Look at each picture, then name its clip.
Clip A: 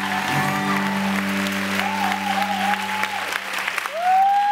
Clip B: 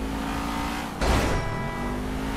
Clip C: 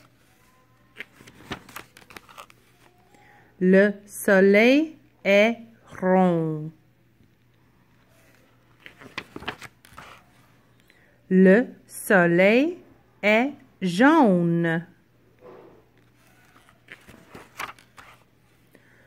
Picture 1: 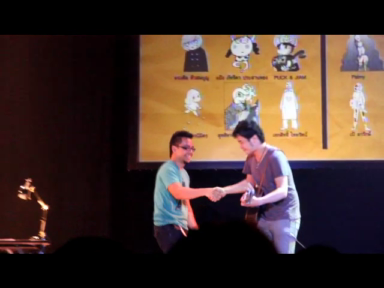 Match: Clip A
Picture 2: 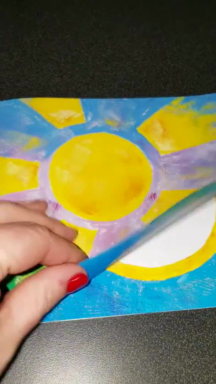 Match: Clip C